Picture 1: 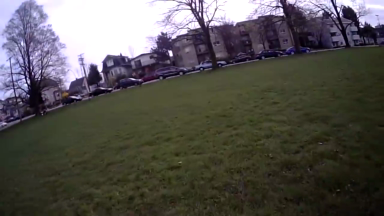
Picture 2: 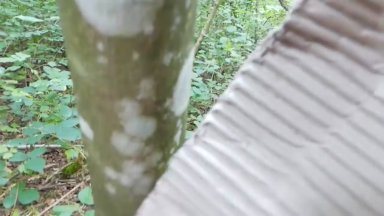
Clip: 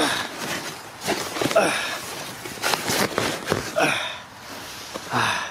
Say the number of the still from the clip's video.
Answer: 2